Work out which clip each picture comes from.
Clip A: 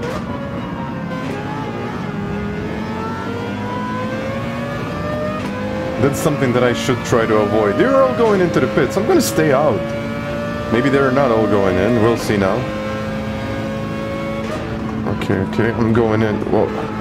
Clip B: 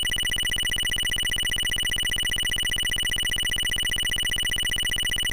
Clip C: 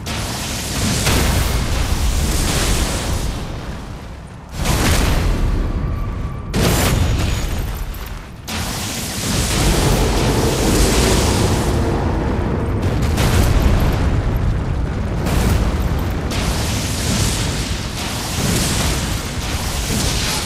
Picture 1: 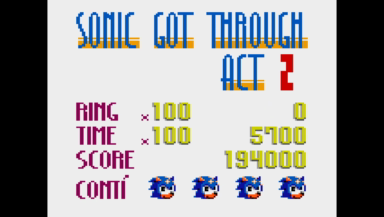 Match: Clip B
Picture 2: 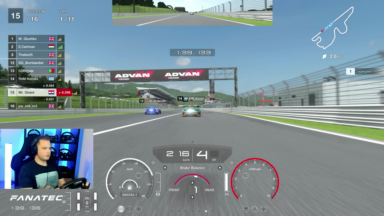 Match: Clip A